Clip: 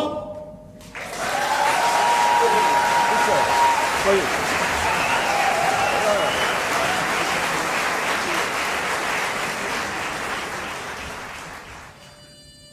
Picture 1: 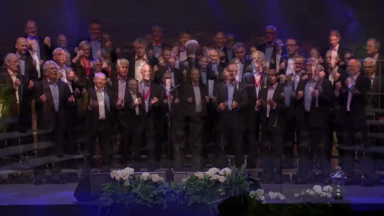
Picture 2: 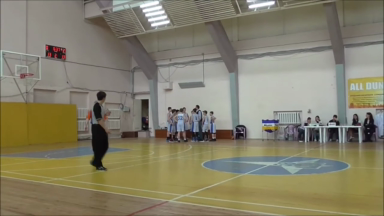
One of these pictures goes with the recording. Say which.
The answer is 1